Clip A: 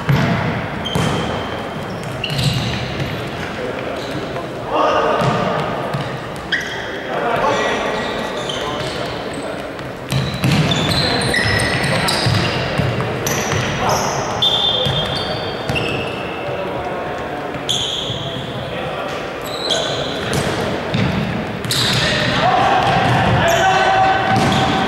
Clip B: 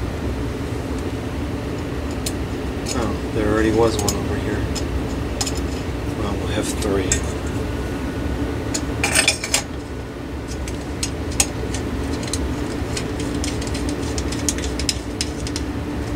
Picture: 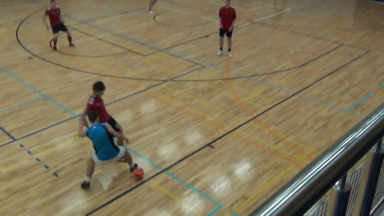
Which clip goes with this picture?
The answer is A